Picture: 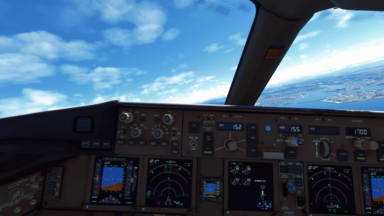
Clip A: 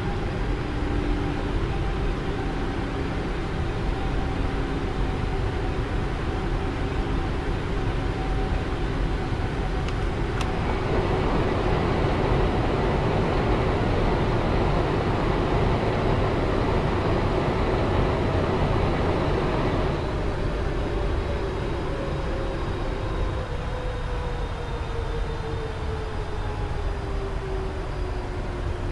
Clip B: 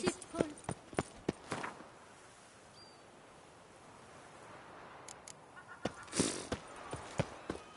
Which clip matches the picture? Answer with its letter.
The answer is A